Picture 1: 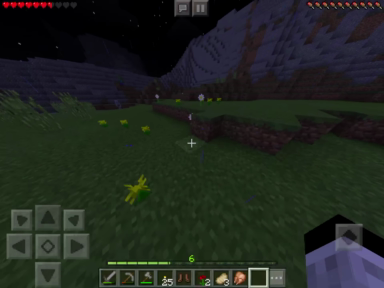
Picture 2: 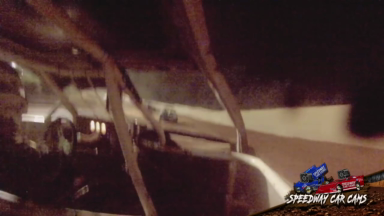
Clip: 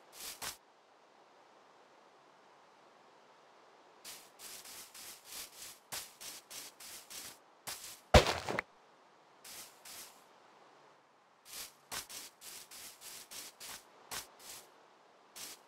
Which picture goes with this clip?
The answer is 1